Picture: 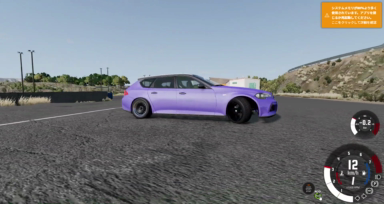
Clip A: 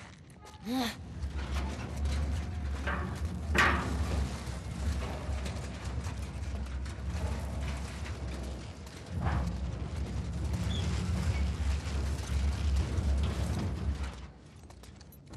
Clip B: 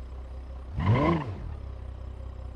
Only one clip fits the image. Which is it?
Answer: B